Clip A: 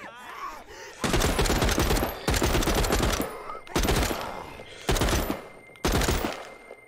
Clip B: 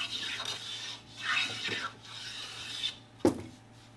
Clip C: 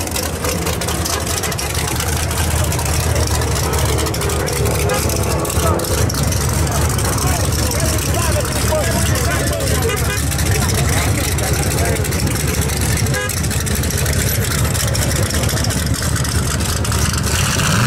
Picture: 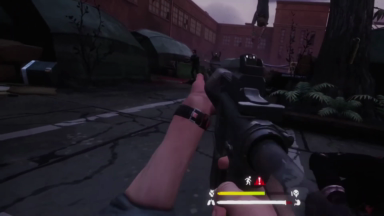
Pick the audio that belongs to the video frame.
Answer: A